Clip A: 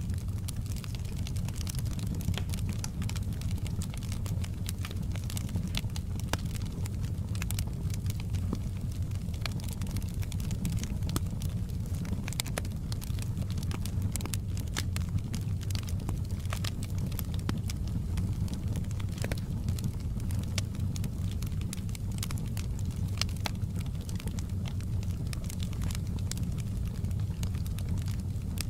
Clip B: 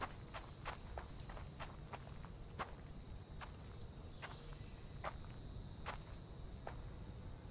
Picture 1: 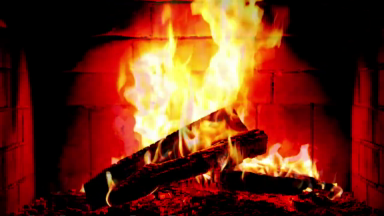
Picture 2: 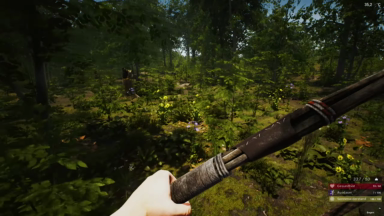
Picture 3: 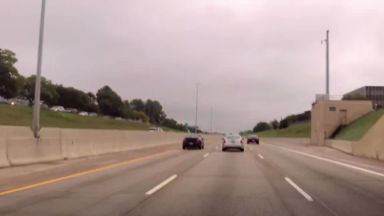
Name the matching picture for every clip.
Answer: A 1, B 2